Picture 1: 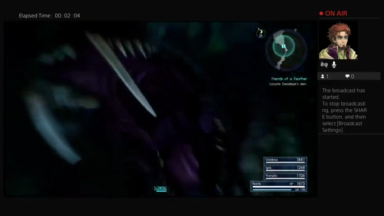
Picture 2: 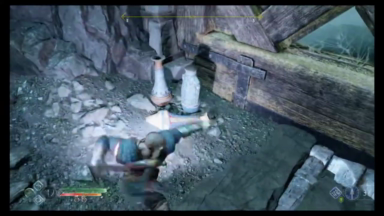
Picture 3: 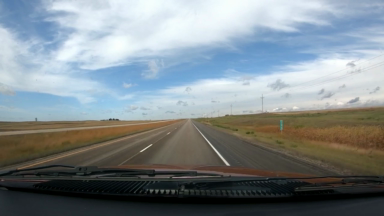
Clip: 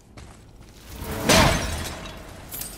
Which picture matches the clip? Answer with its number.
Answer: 2